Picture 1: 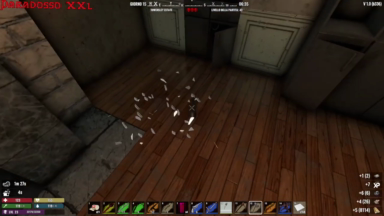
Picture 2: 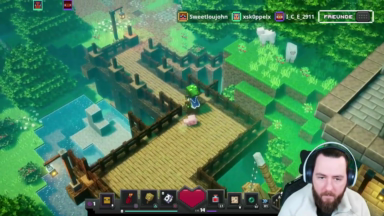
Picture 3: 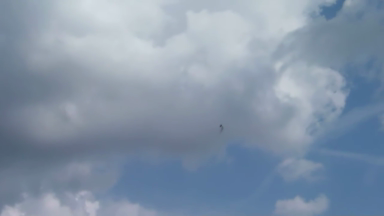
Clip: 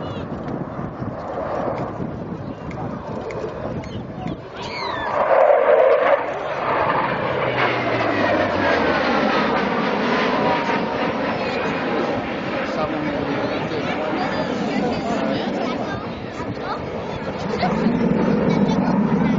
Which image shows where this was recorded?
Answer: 3